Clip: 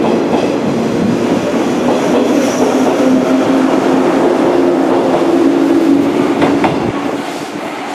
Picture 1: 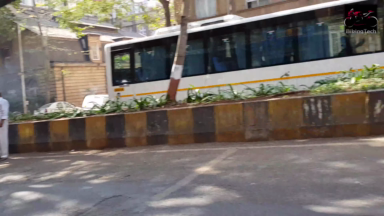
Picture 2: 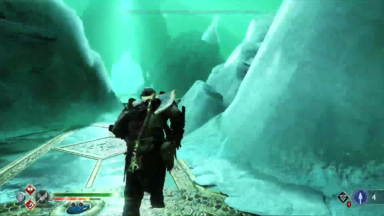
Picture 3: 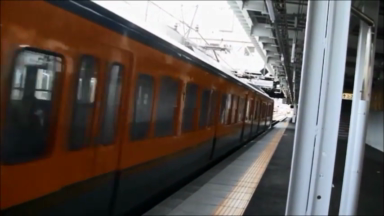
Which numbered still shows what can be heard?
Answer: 3